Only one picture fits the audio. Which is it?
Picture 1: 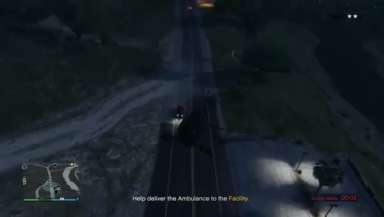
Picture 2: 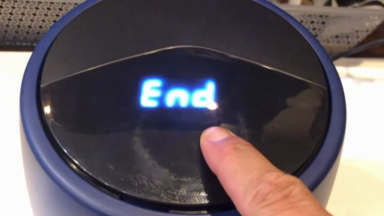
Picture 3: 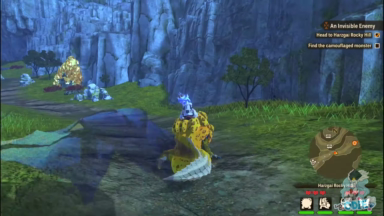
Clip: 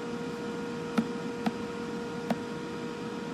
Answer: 2